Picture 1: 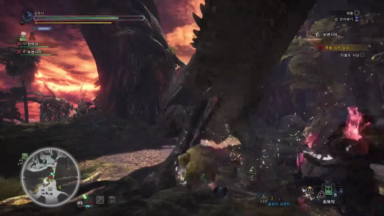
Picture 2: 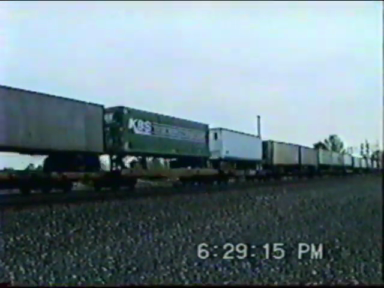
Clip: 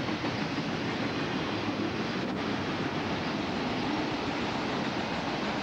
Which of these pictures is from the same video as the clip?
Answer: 2